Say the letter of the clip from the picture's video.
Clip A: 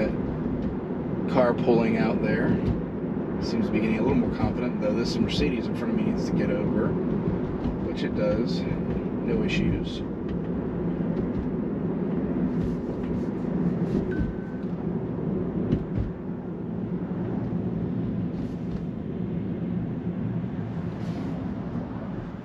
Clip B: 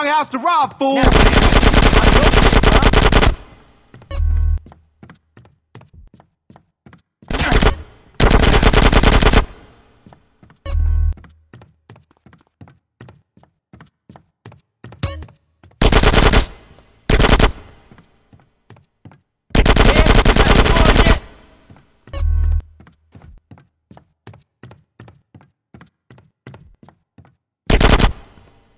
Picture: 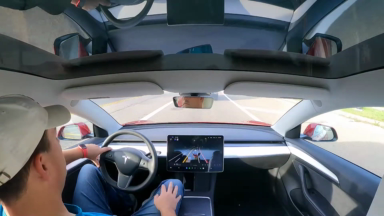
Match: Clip A